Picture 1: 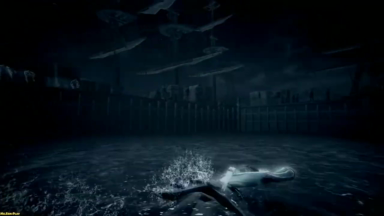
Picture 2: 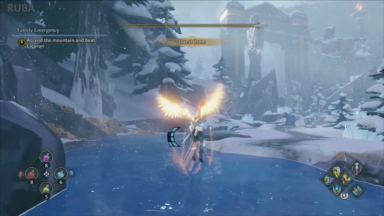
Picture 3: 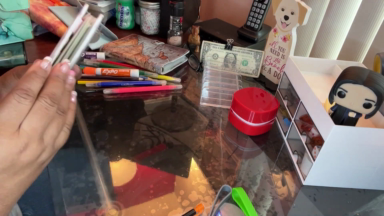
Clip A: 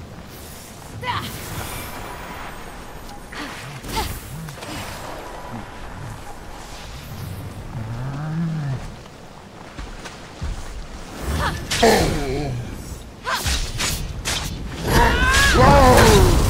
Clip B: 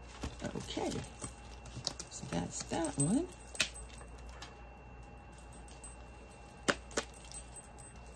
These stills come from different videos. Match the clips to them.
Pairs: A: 2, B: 3